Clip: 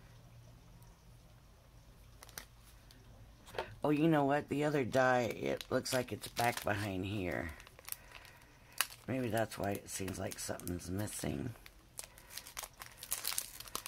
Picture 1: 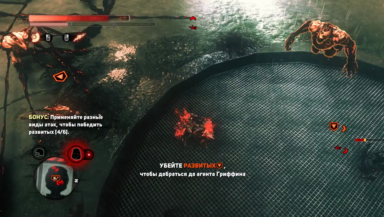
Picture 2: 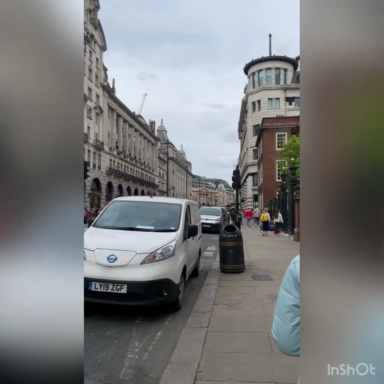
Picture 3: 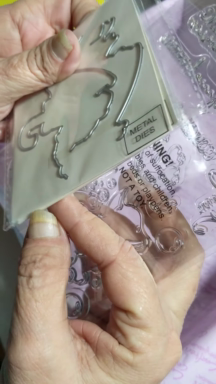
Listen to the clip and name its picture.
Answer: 3